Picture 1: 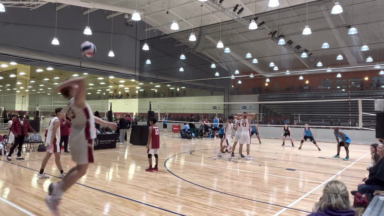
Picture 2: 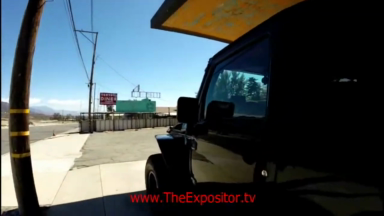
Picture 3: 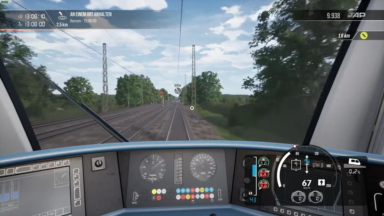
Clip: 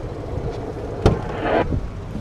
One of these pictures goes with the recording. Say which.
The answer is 2